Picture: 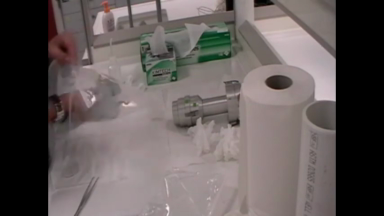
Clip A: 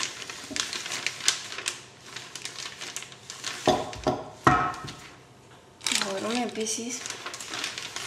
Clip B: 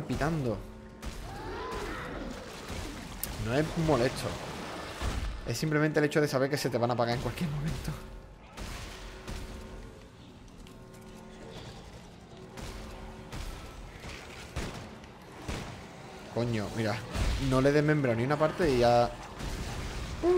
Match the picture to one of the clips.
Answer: A